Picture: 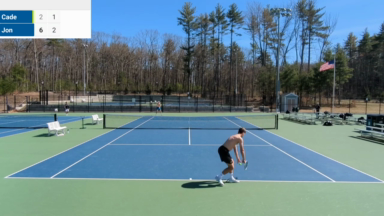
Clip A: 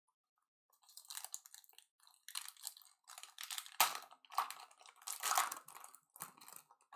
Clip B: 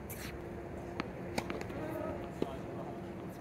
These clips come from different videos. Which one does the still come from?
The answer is B